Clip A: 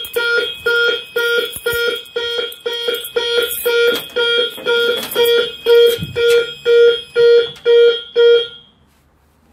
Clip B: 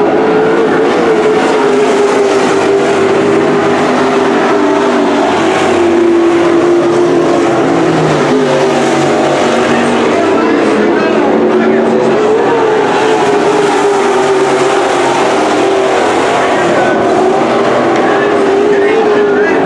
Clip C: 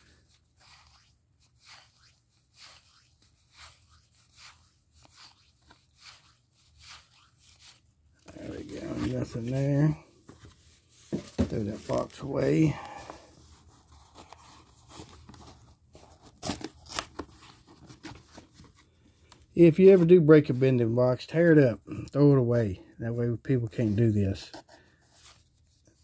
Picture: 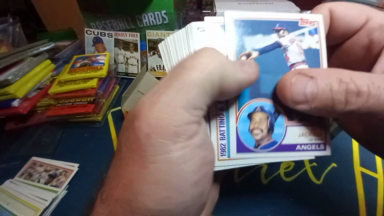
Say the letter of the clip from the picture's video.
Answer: C